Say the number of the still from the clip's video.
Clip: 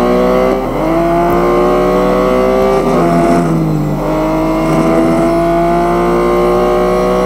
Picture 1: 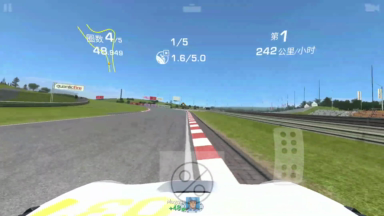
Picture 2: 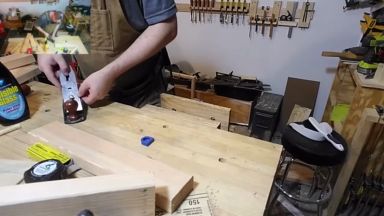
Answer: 1